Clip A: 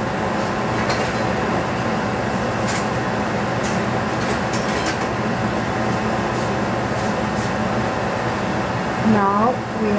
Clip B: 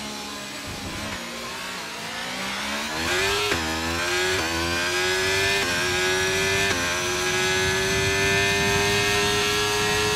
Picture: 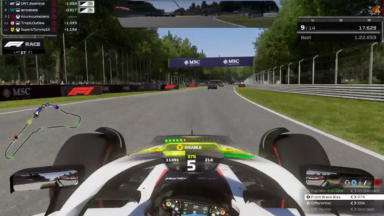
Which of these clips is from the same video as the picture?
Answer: B